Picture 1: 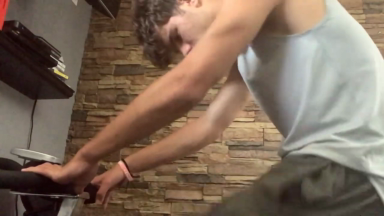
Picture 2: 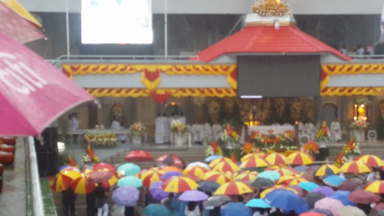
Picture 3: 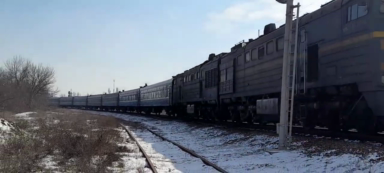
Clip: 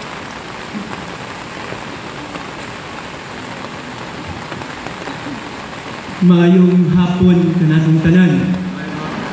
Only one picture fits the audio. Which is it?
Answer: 2